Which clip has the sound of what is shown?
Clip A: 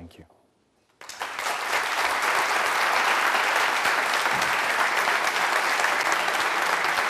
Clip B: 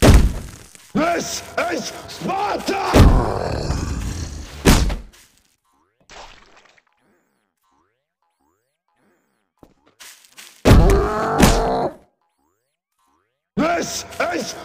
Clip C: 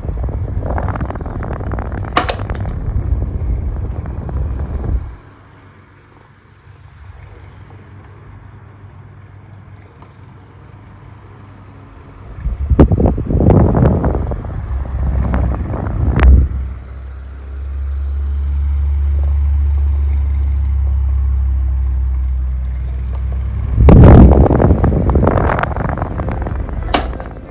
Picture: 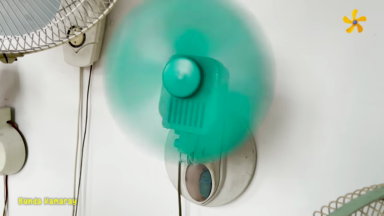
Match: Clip C